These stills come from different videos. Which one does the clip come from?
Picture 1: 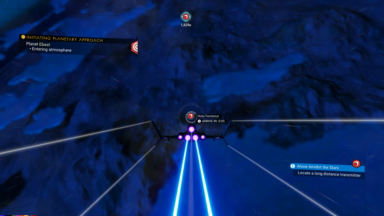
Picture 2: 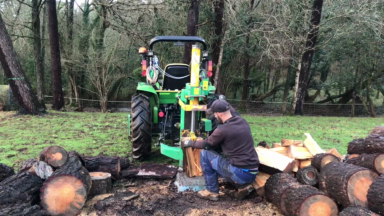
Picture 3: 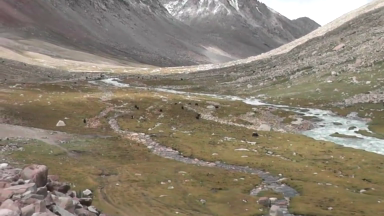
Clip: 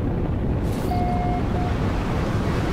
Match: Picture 1